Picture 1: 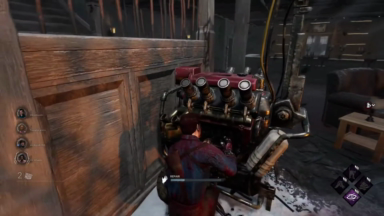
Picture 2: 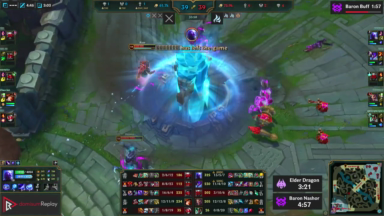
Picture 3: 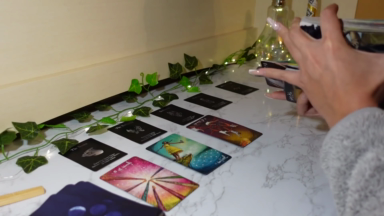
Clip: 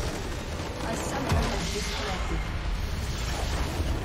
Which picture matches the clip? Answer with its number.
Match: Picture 2